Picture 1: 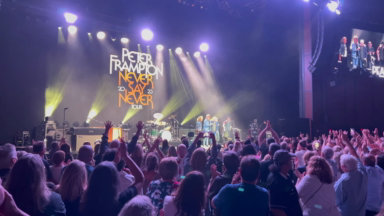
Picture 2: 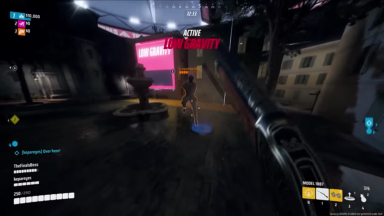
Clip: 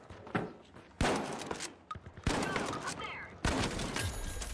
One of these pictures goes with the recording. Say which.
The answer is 2